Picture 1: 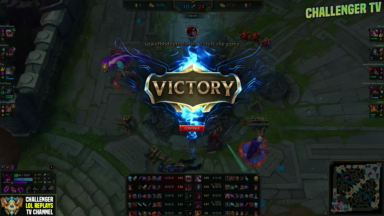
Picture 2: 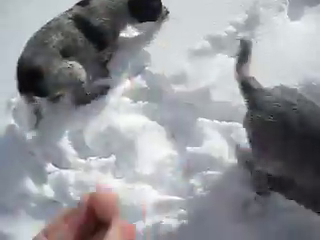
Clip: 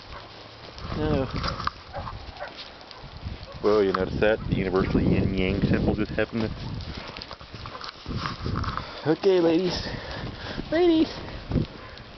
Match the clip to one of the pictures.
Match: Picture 2